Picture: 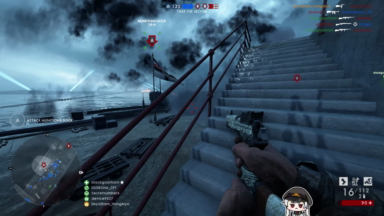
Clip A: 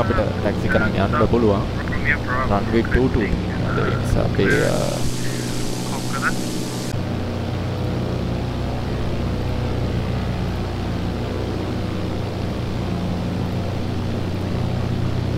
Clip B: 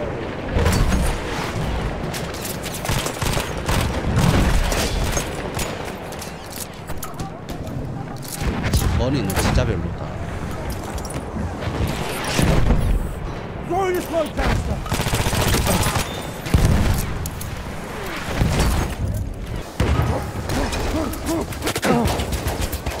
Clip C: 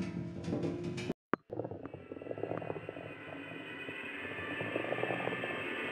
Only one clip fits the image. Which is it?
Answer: B